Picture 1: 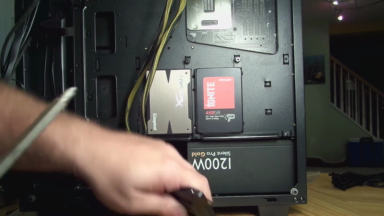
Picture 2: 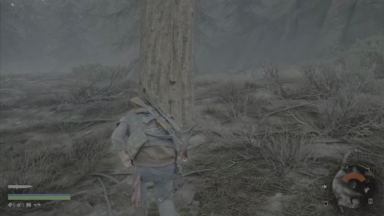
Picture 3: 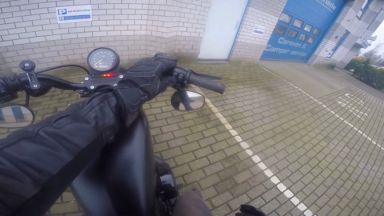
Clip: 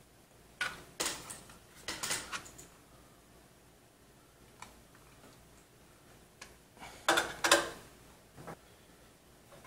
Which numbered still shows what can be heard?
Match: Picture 1